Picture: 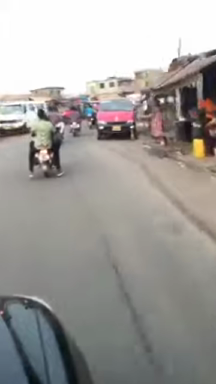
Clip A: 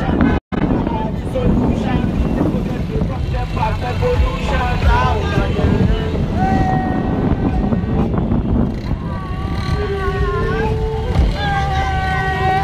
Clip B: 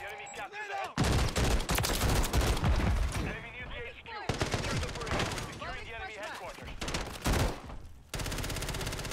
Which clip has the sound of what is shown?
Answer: A